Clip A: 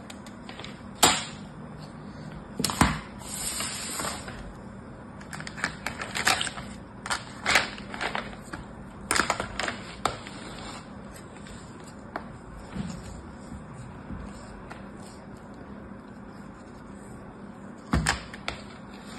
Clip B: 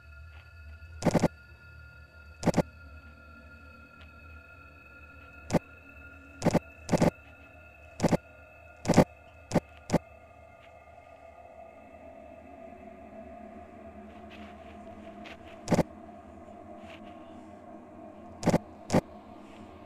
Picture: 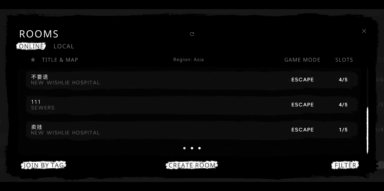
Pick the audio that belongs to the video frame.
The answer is B